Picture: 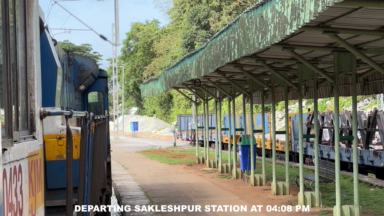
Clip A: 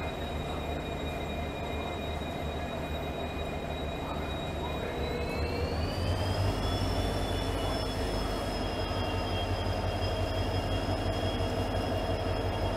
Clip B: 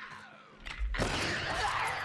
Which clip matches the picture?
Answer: A